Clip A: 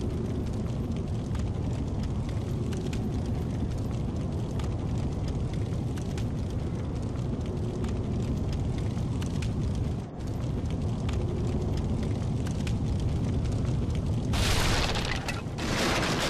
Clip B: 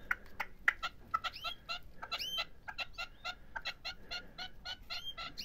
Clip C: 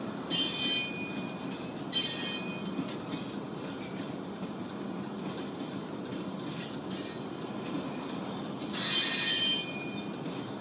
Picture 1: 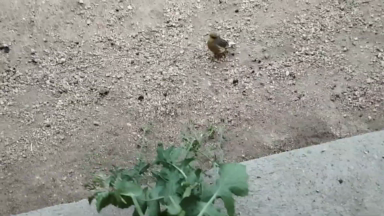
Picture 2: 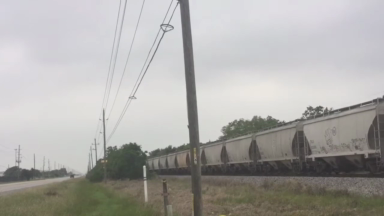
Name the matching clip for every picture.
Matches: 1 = B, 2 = C